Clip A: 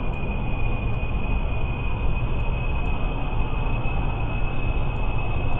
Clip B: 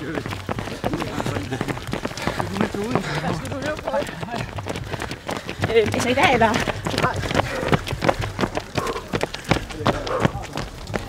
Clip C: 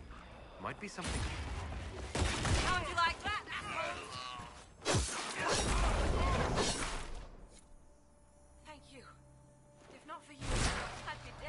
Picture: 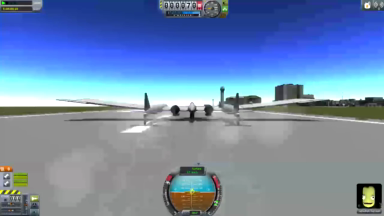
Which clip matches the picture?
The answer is A